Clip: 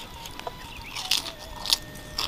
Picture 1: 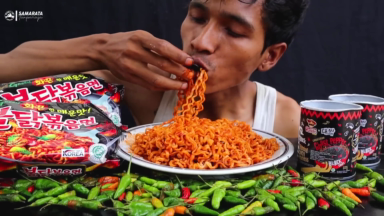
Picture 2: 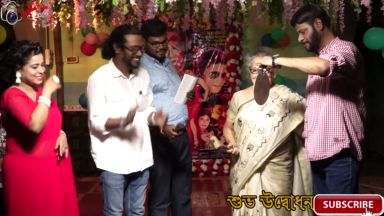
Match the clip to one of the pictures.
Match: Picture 1